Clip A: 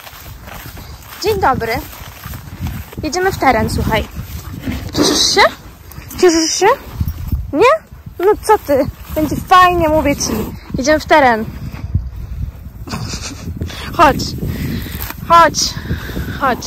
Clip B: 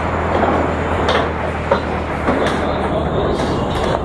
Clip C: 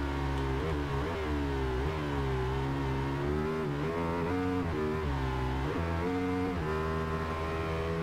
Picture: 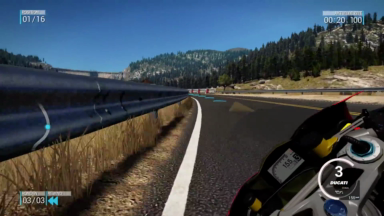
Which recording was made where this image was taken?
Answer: C